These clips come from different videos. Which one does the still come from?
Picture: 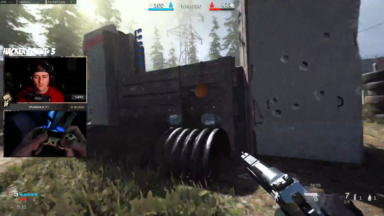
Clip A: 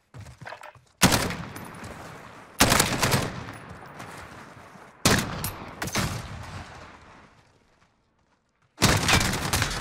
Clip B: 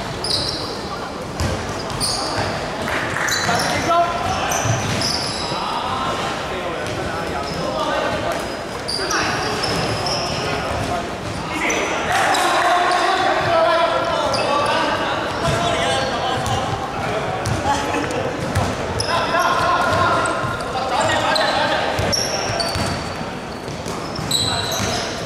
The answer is A